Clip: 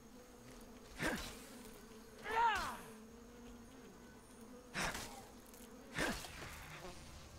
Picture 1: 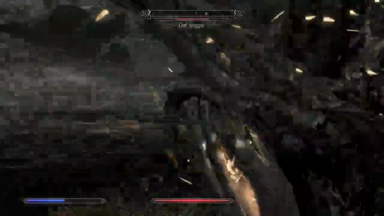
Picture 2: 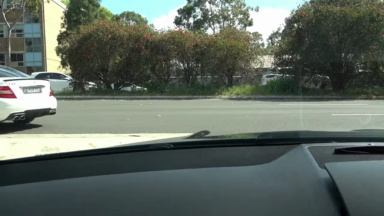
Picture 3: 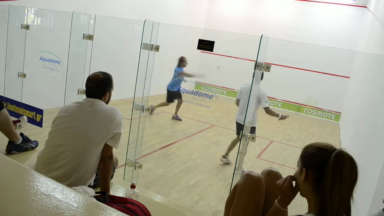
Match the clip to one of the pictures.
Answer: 1